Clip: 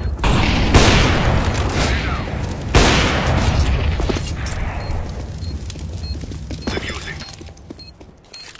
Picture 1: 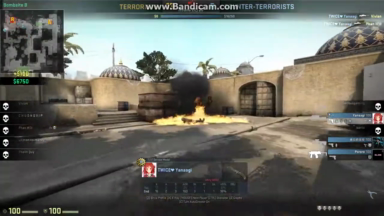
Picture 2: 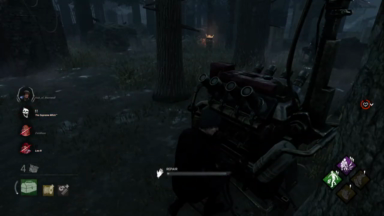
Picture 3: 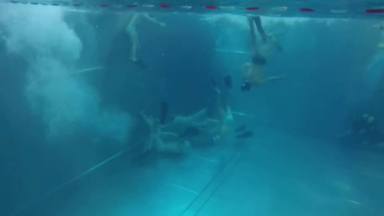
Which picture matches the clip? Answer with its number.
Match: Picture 1